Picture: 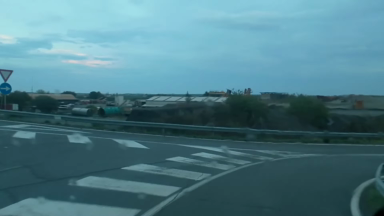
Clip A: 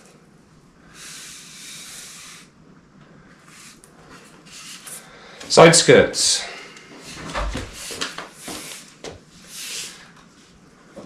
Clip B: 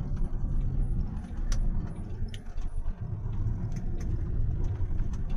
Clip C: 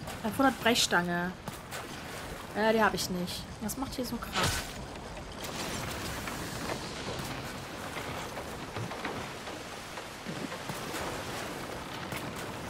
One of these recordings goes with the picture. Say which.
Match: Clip B